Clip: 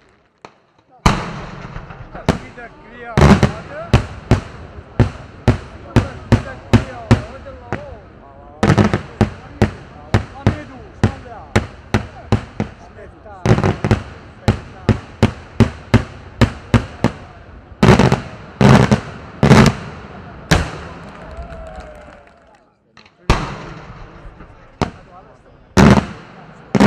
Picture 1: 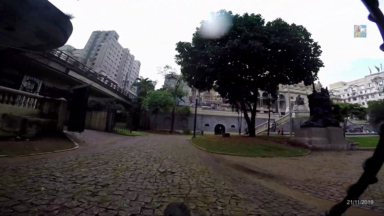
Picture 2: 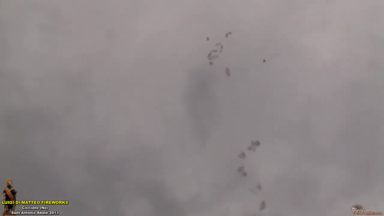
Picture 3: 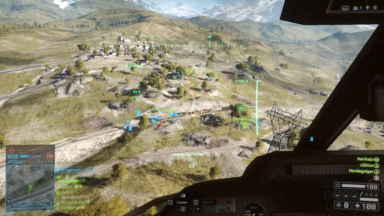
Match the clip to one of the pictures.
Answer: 2